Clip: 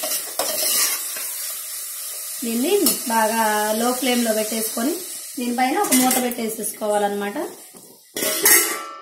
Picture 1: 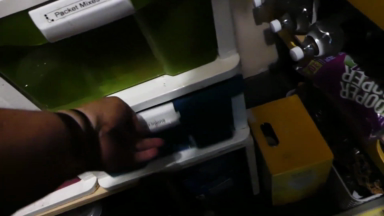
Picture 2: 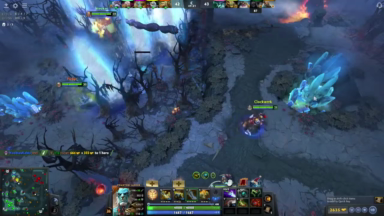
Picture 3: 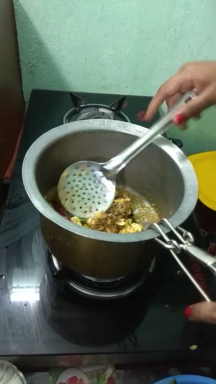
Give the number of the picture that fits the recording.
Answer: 3